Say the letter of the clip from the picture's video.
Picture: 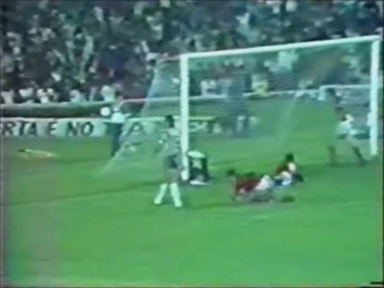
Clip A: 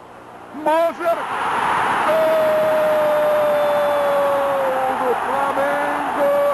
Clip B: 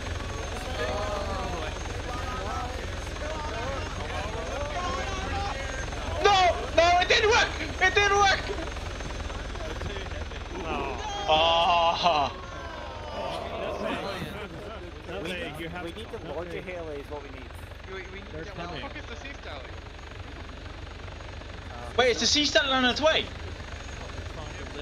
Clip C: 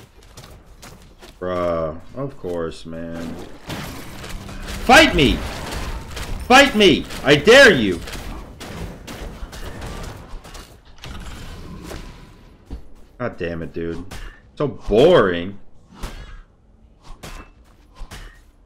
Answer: A